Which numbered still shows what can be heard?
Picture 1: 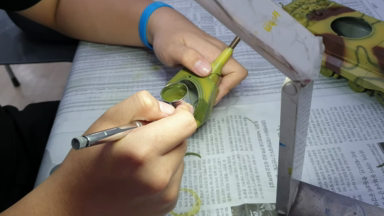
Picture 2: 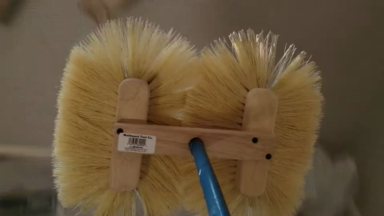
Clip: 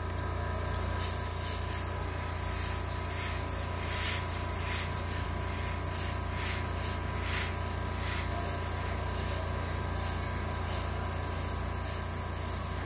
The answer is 1